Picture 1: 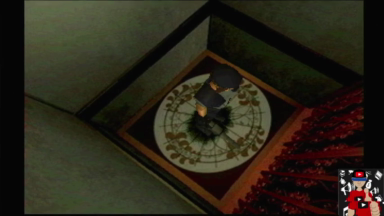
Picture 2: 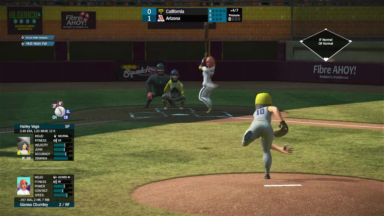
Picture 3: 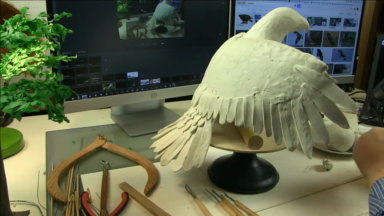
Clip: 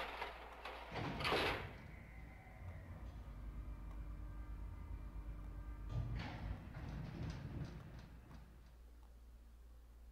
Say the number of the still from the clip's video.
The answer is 1